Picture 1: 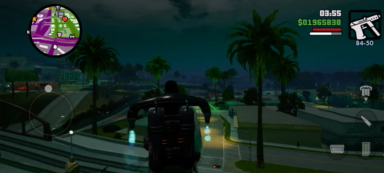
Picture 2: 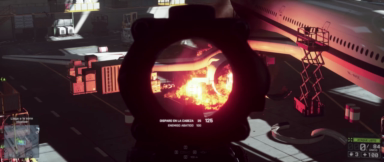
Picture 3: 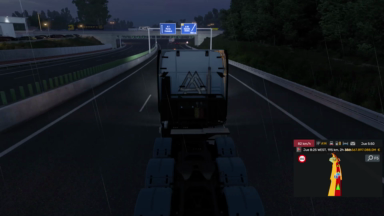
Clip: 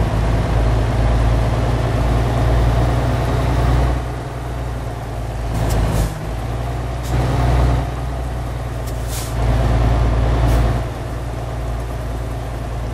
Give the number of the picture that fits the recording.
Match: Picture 3